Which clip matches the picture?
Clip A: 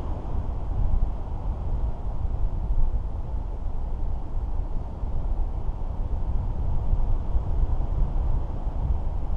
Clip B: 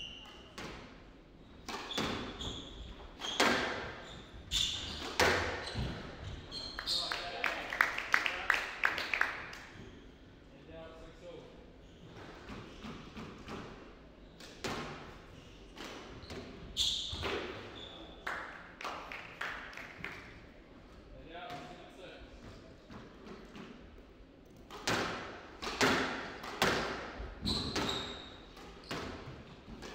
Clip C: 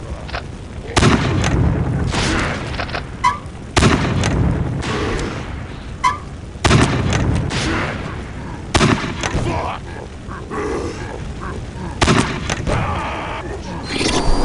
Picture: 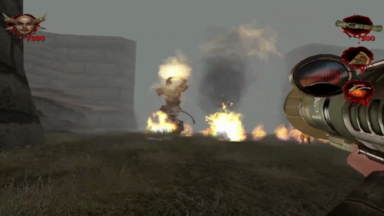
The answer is C